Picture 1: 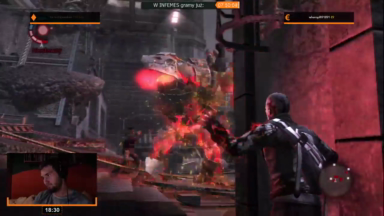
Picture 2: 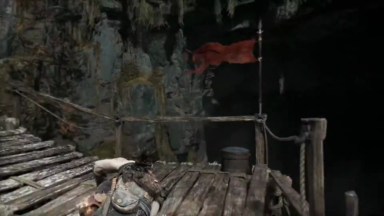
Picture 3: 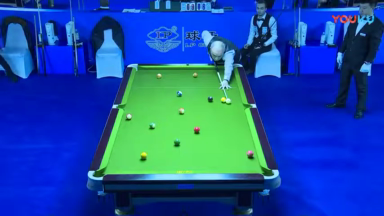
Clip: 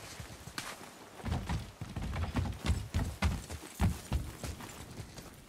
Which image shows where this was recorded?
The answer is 2